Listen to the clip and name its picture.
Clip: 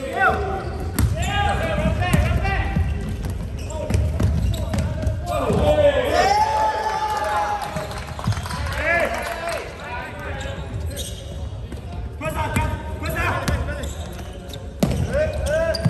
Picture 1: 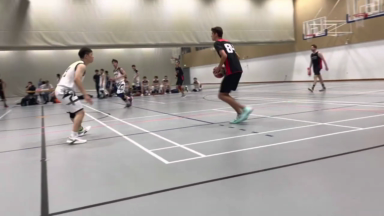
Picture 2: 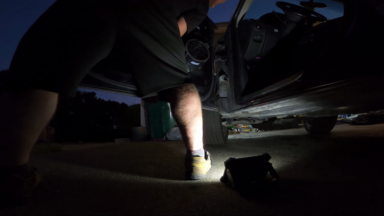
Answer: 1